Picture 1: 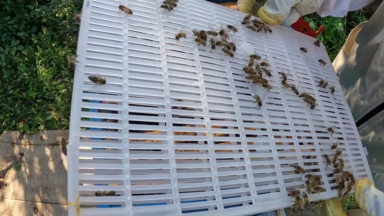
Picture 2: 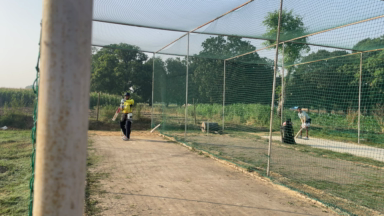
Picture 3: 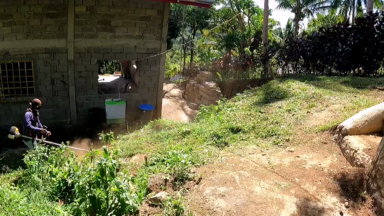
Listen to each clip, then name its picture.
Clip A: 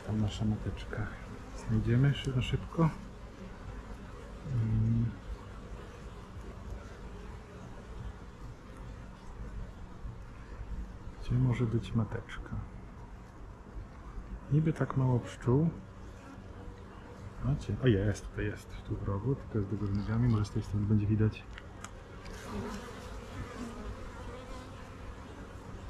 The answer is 1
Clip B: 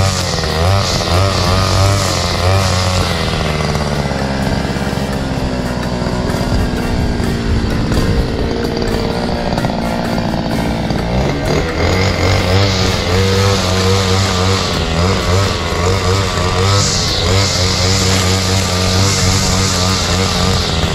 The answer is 3